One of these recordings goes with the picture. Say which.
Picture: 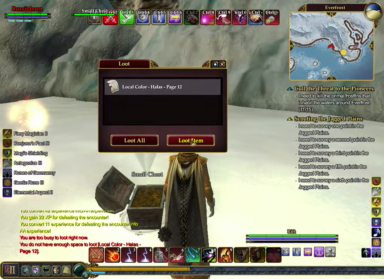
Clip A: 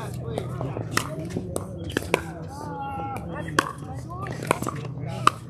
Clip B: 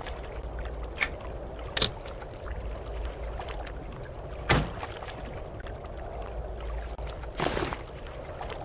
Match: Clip B